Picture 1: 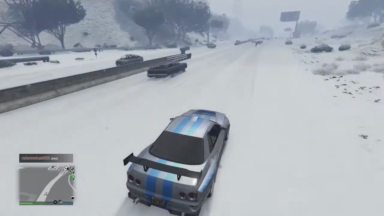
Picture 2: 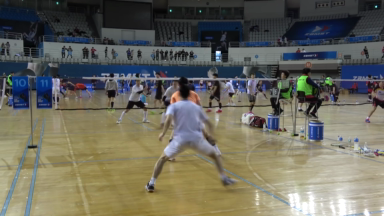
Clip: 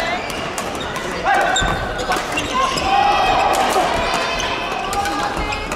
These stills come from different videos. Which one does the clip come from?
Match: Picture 2